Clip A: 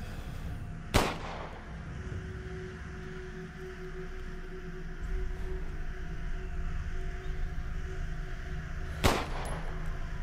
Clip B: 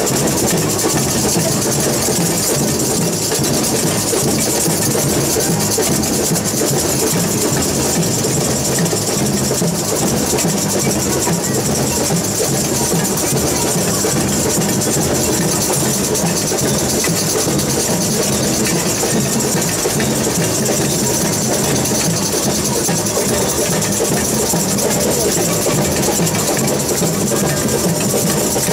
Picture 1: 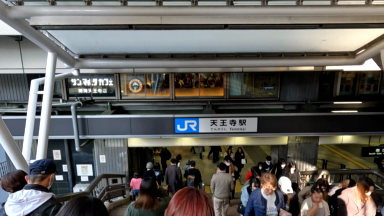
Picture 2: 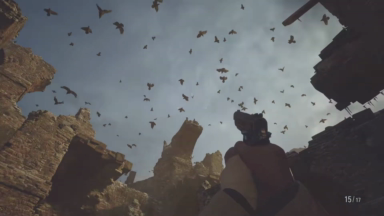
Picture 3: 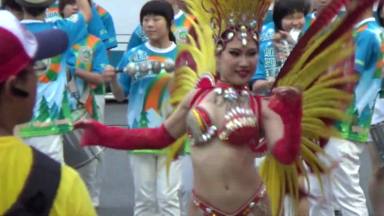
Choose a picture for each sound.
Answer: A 2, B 3